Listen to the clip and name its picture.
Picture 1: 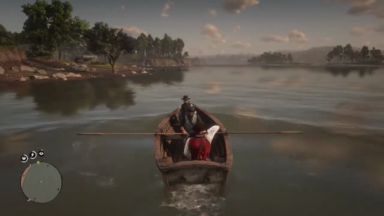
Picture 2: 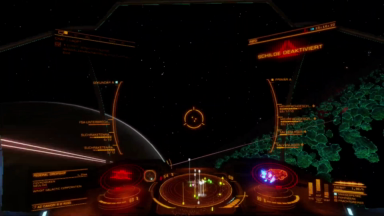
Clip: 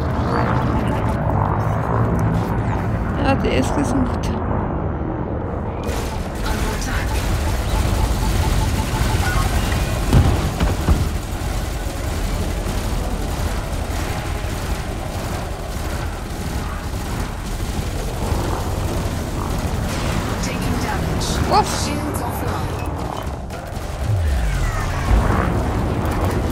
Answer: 2